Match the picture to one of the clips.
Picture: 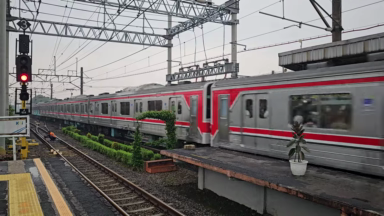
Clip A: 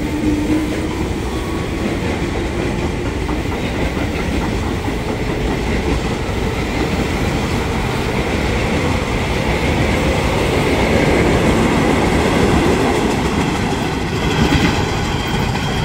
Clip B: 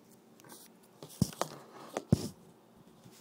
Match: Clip A